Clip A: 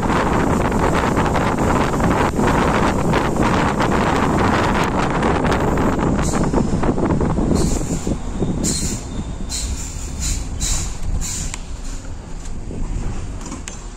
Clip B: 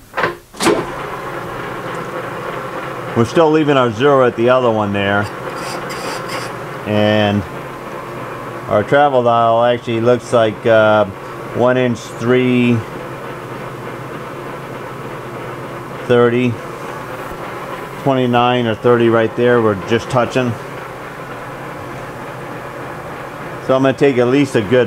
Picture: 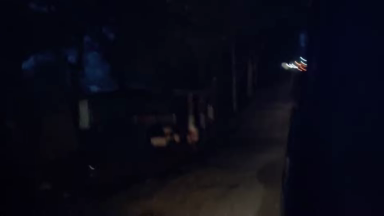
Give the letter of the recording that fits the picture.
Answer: A